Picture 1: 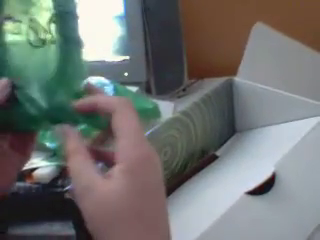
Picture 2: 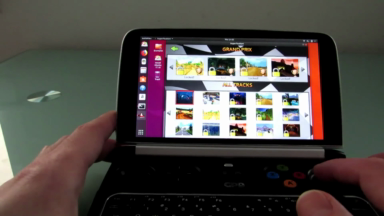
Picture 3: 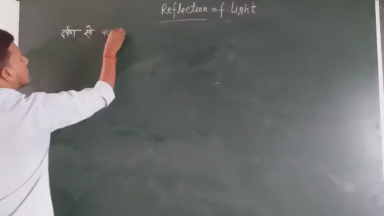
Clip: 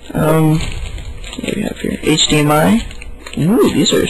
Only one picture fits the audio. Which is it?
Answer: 1